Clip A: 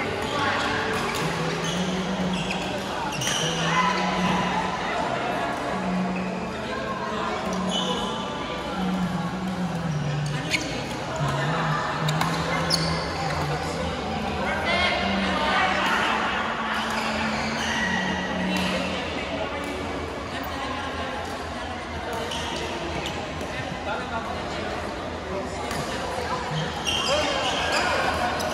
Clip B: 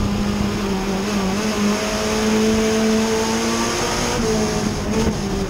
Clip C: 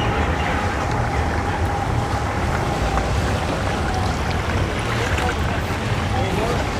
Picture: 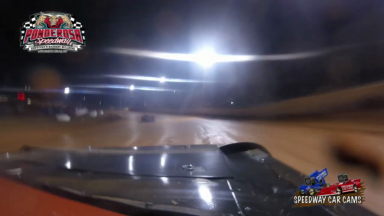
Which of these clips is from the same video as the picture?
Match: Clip B